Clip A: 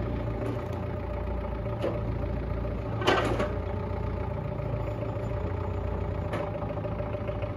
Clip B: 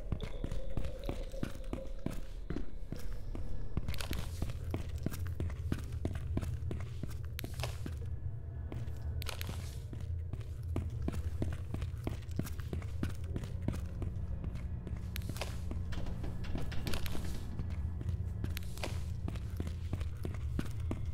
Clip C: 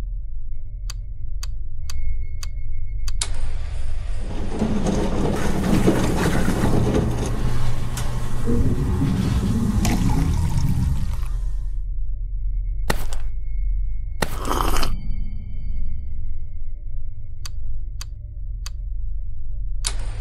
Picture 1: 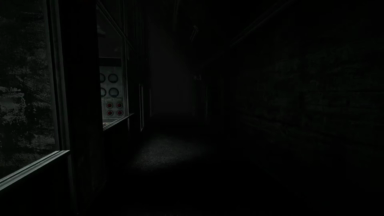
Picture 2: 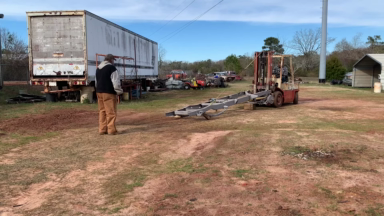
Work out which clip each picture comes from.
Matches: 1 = B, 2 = A